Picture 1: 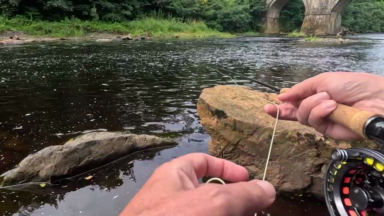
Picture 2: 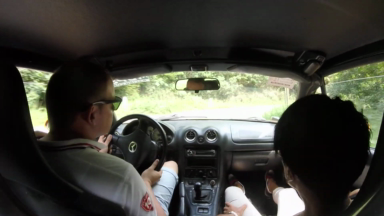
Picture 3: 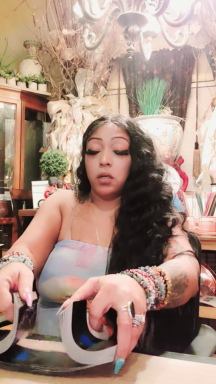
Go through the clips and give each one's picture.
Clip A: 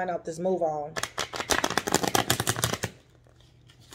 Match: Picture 3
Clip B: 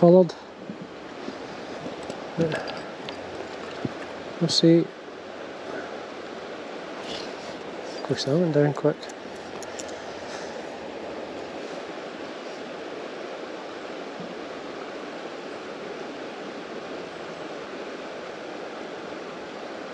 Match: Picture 1